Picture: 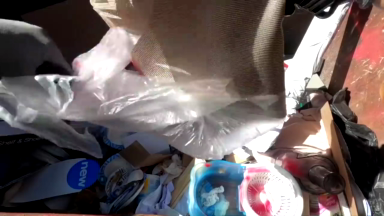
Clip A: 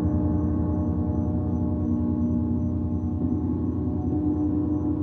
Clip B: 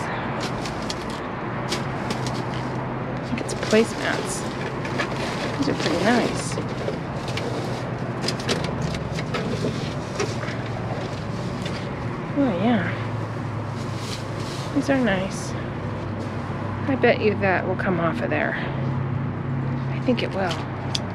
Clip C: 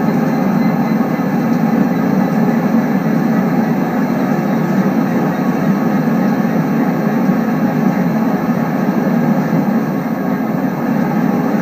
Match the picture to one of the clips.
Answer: B